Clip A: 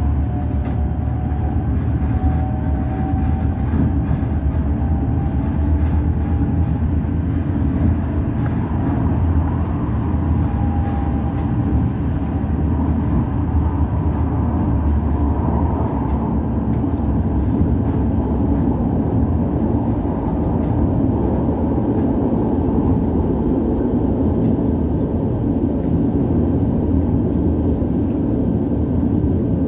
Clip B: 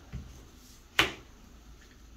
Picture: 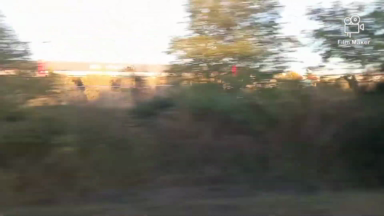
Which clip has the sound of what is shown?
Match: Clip A